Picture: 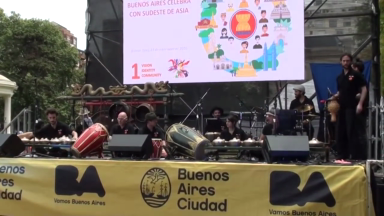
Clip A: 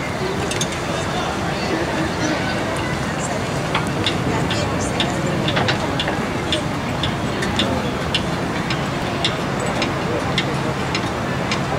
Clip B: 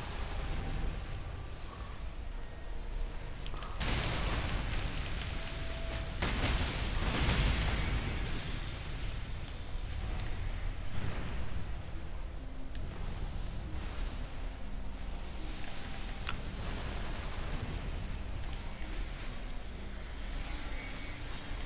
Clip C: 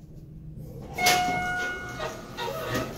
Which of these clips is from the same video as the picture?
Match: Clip A